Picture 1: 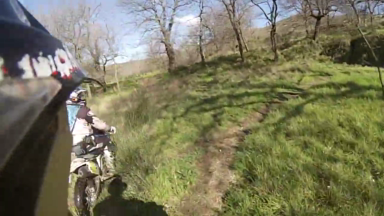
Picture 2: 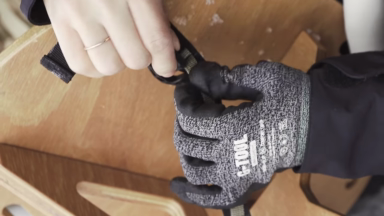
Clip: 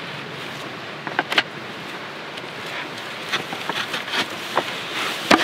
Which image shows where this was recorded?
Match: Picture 2